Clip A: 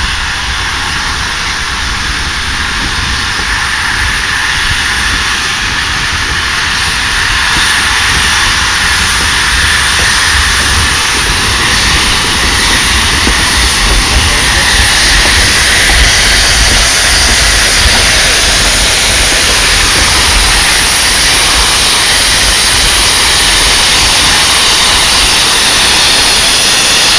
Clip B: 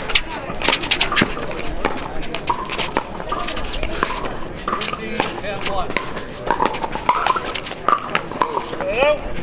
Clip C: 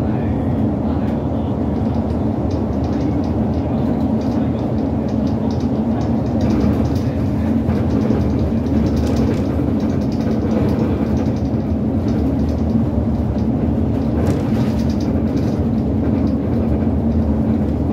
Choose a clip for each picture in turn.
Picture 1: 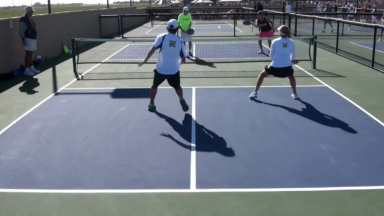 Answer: B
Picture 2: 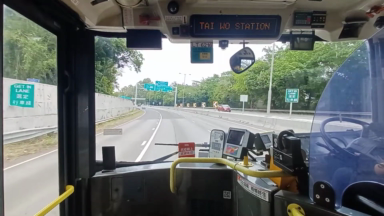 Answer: C